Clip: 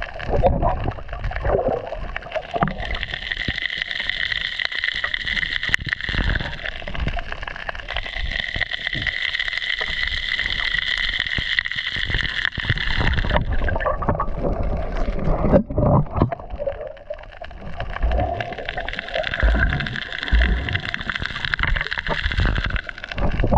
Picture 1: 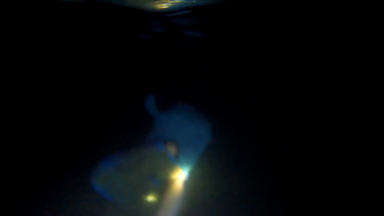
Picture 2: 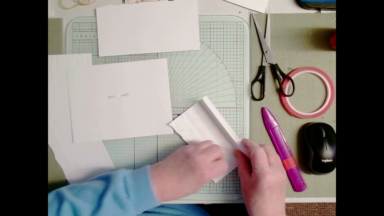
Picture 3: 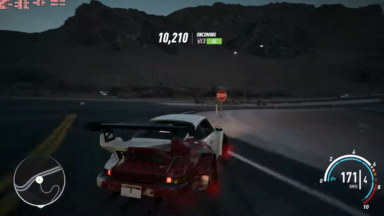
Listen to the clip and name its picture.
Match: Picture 1